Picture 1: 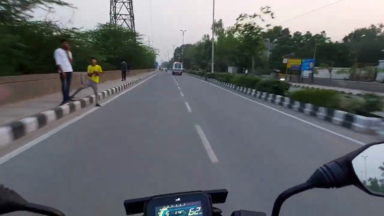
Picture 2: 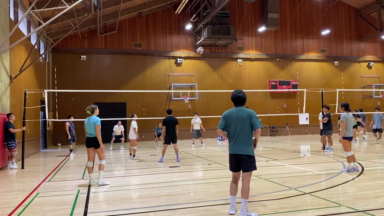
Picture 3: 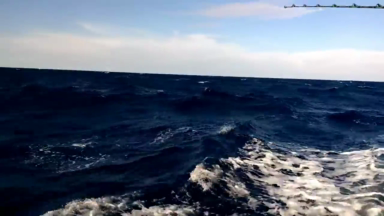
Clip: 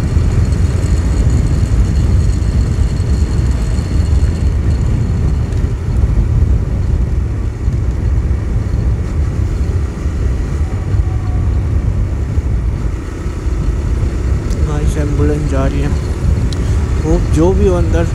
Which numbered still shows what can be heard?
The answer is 1